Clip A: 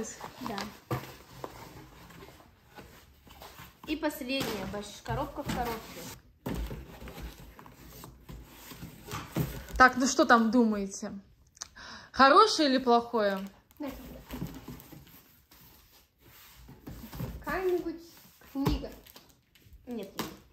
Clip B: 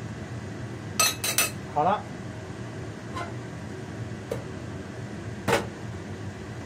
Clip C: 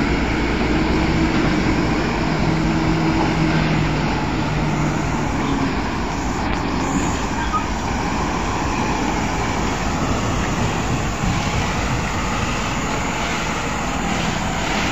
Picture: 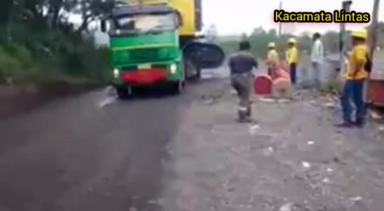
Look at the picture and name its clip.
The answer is C